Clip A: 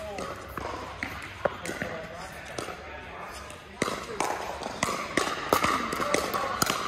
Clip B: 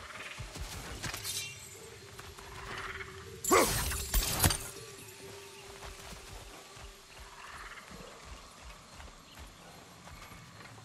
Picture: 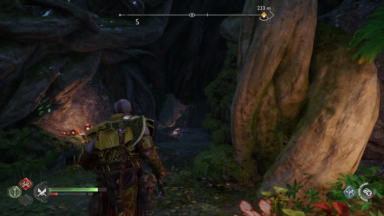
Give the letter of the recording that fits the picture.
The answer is B